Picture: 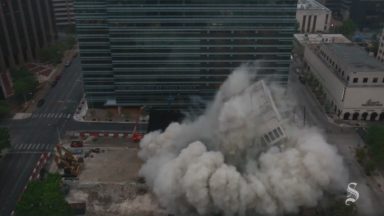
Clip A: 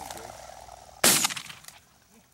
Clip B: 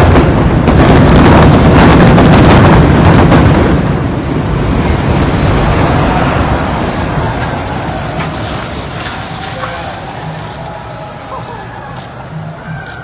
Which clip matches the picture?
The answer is B